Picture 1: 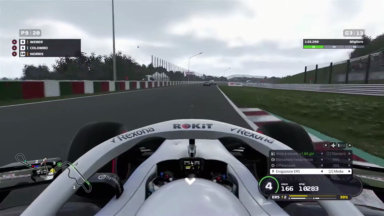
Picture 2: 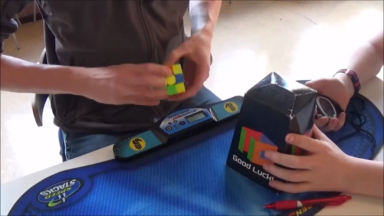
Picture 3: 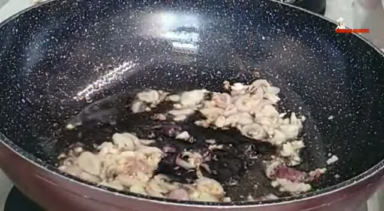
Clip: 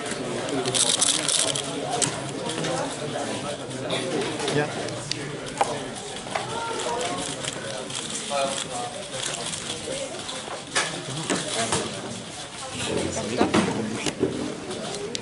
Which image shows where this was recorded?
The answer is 2